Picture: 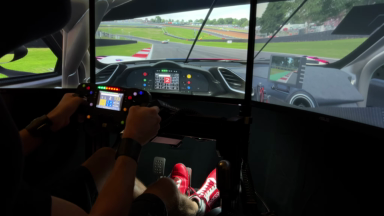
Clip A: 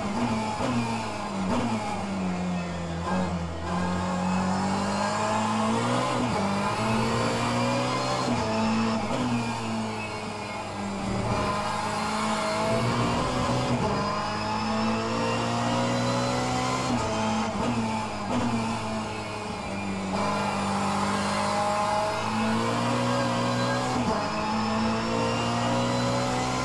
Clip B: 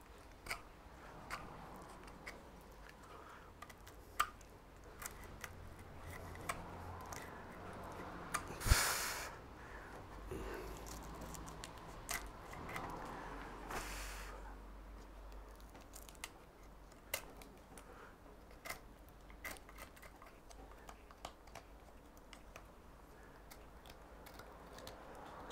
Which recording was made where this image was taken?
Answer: A